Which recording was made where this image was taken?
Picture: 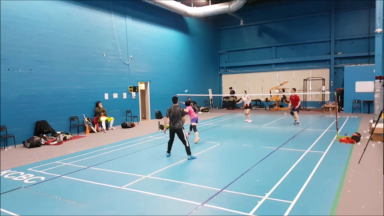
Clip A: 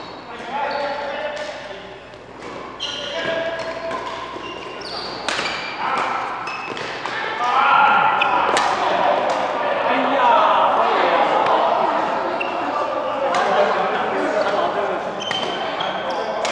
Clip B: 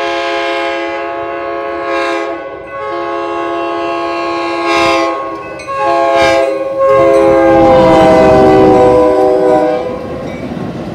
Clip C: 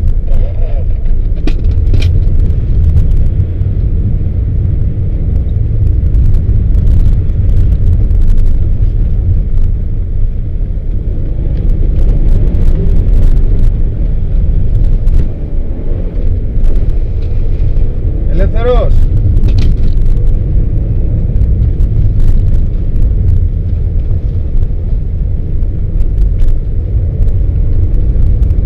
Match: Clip A